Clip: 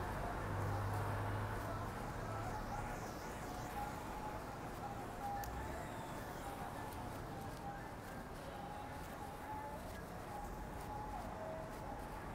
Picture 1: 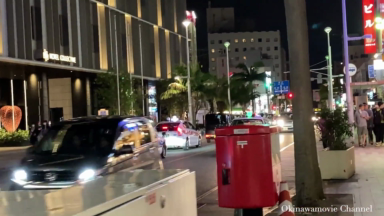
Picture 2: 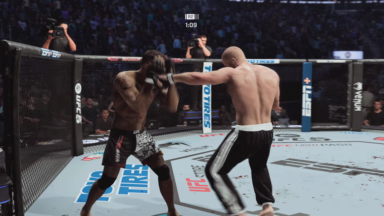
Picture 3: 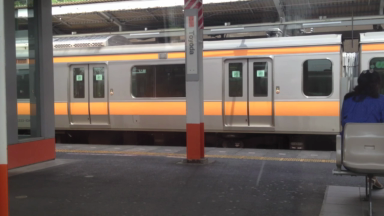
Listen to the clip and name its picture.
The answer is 1